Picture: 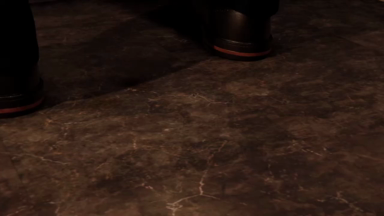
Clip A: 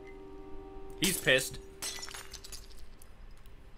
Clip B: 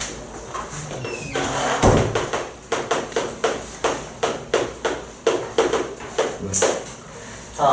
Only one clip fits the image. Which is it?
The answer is A